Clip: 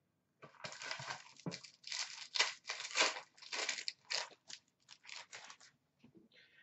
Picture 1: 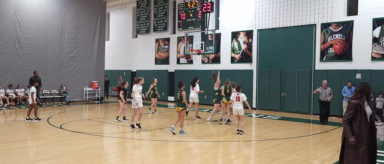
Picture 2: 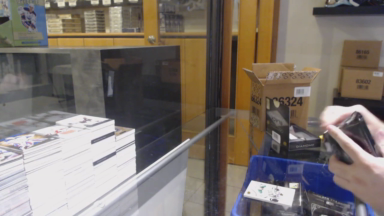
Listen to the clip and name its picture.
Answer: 2